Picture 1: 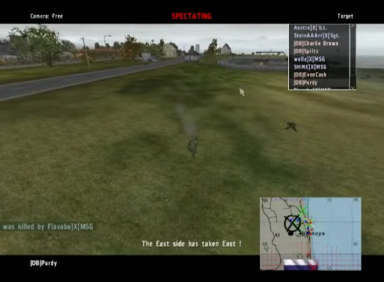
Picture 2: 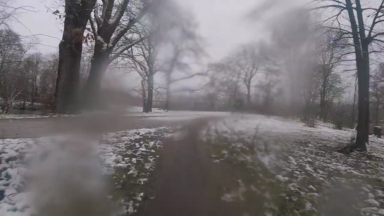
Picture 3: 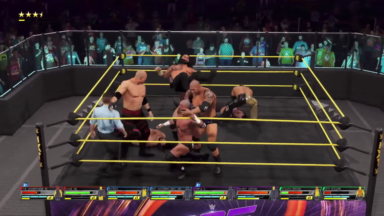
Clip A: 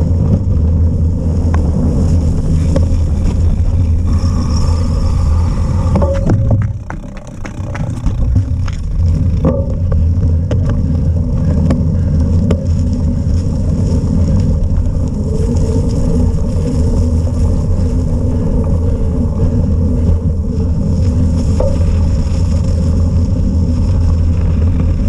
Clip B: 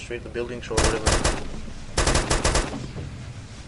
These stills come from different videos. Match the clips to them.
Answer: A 2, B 1